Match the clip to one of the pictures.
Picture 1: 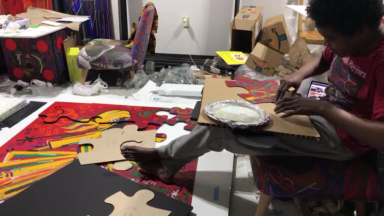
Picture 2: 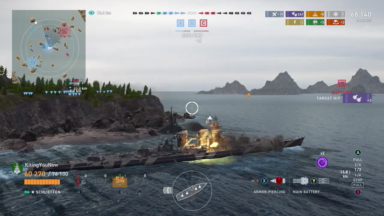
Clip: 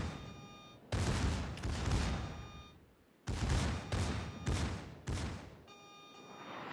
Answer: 2